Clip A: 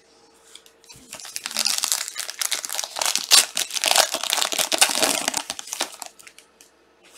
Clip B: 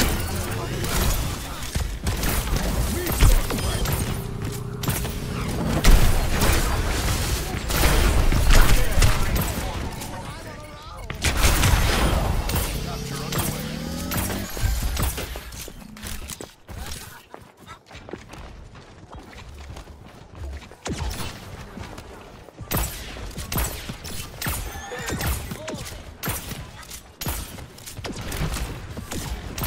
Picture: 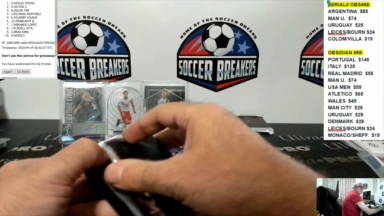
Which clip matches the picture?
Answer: A